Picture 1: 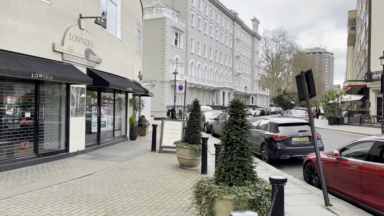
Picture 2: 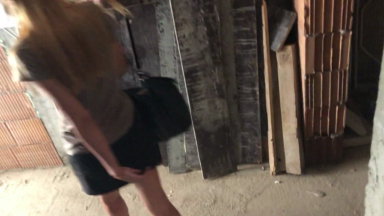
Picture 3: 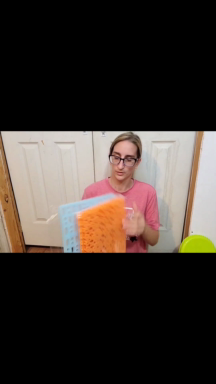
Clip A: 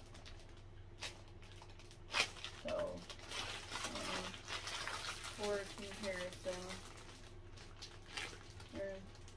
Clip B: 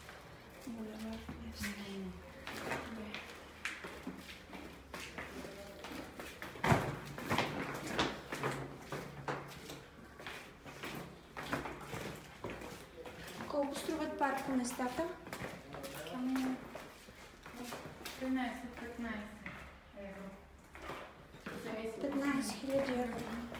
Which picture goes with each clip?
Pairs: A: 3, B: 2